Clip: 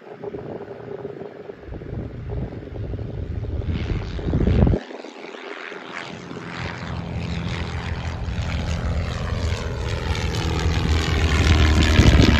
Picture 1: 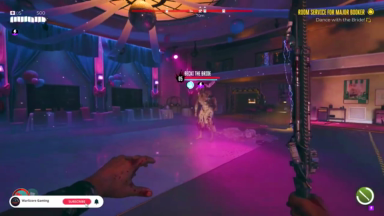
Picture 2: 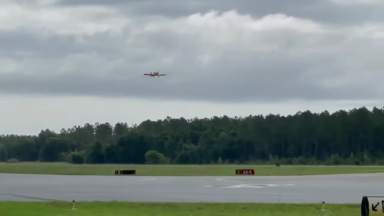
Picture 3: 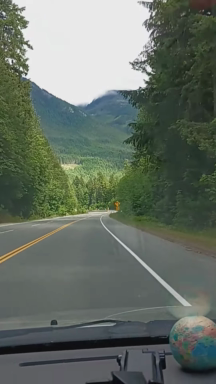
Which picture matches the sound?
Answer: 2